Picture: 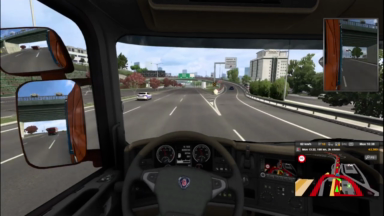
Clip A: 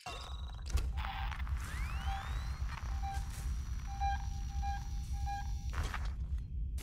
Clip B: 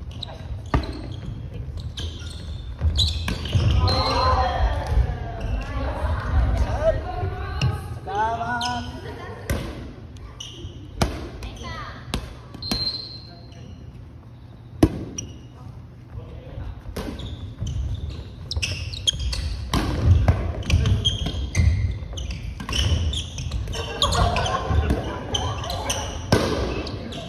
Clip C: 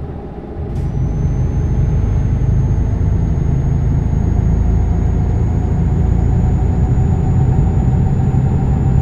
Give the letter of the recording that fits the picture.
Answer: C